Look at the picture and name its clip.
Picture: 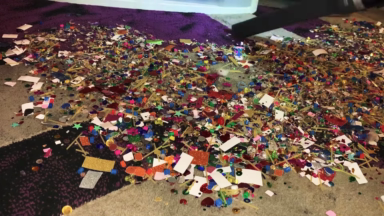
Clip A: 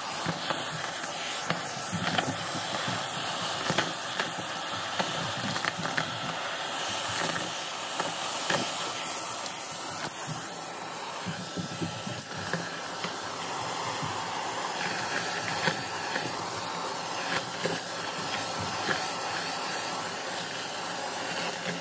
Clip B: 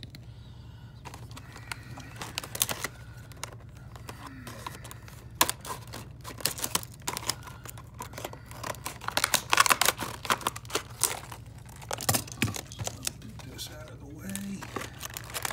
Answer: A